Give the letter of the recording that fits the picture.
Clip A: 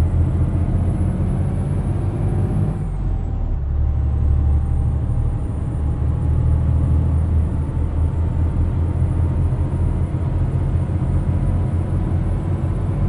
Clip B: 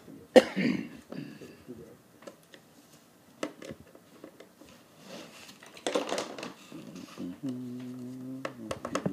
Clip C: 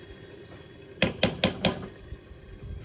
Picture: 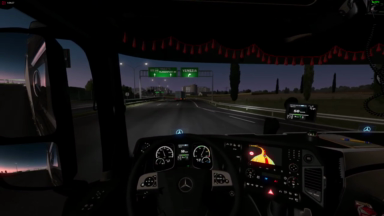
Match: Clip A